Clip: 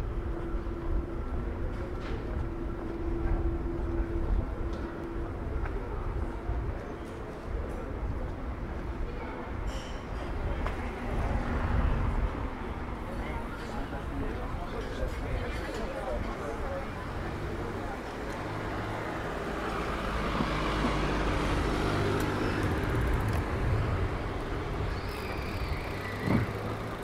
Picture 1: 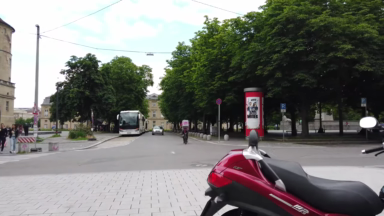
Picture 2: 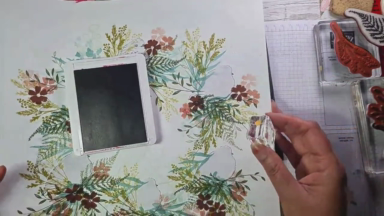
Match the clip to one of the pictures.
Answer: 1